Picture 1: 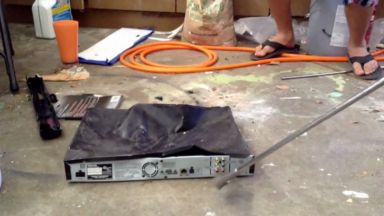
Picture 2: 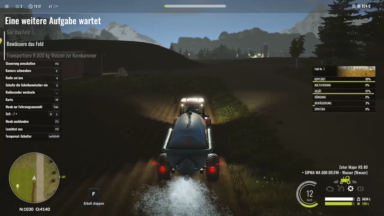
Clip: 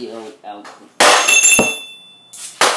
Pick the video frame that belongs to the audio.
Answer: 1